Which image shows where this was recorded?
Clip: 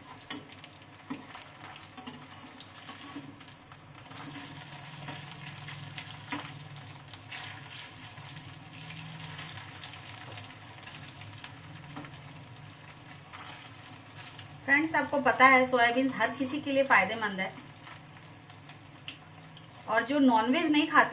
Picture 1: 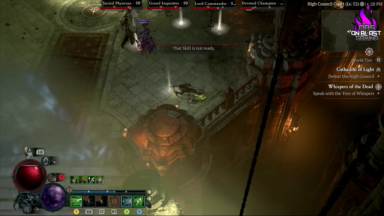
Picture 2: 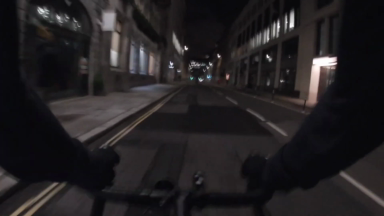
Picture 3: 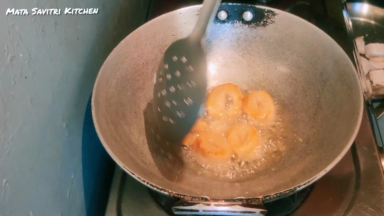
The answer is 3